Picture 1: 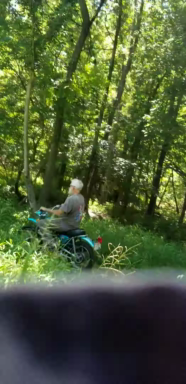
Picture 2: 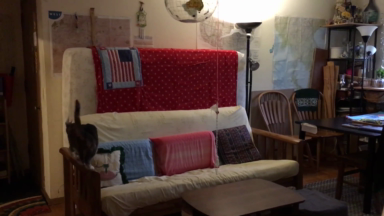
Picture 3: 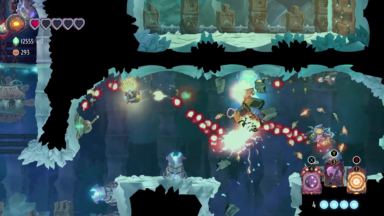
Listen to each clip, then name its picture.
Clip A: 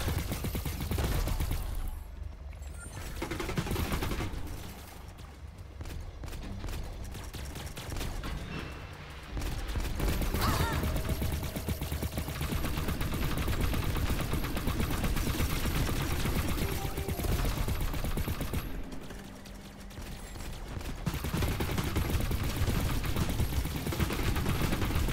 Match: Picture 3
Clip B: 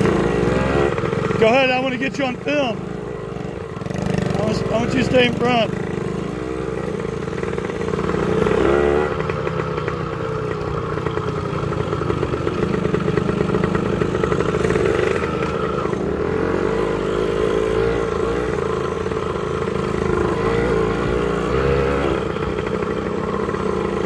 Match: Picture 1